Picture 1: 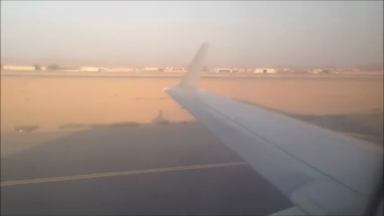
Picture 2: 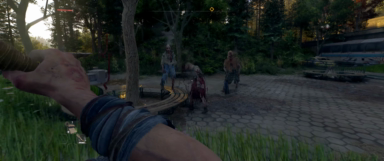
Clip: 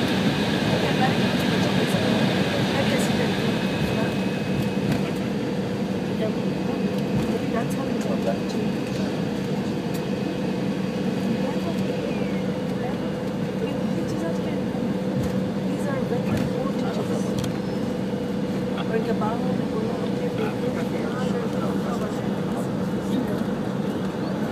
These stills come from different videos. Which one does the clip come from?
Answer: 1